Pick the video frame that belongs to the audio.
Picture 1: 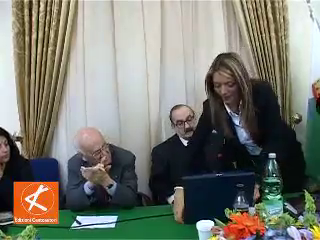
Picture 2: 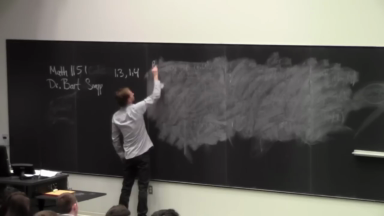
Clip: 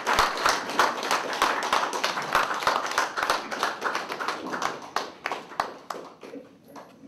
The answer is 1